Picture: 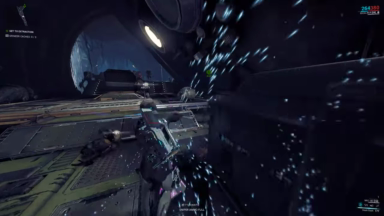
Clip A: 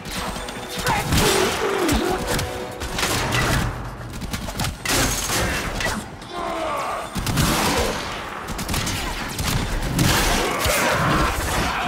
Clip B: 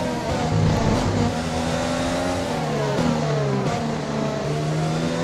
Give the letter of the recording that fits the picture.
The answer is A